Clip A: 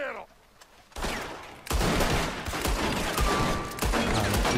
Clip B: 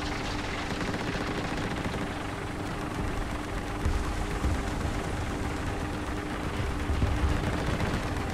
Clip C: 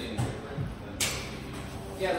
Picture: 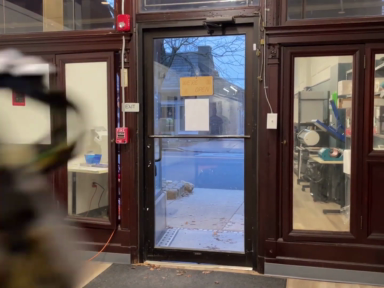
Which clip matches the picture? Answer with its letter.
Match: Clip C